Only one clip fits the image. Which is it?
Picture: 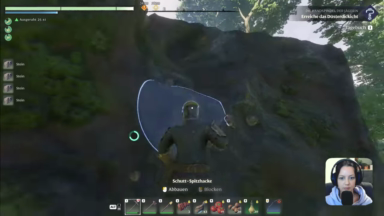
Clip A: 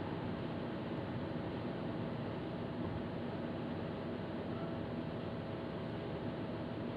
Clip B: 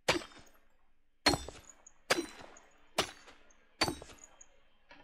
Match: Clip B